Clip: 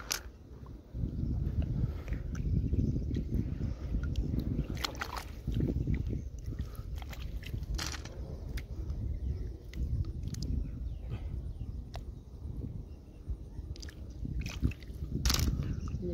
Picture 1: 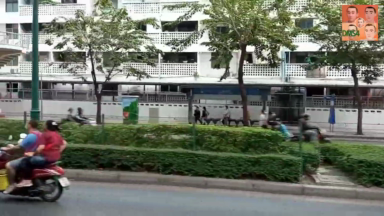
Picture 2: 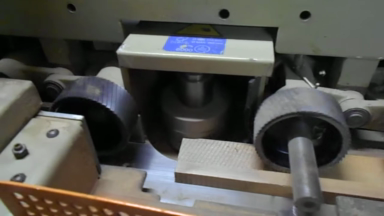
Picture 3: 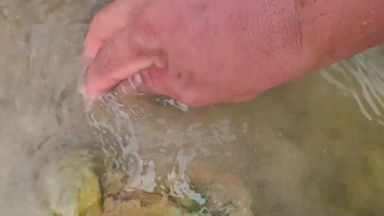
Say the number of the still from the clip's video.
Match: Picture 3